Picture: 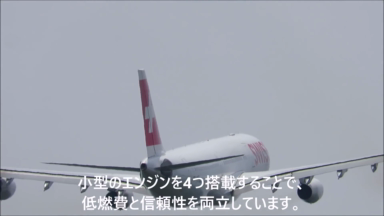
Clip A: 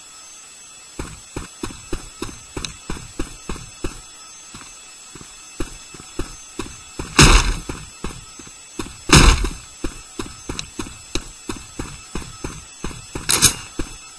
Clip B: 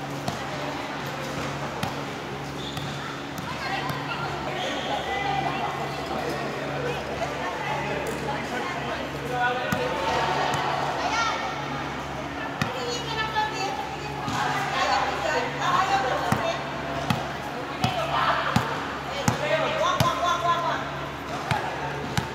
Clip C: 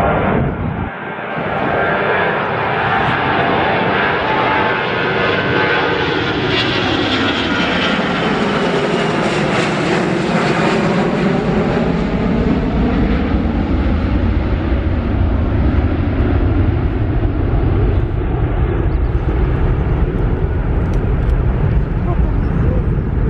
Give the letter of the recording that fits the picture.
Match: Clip C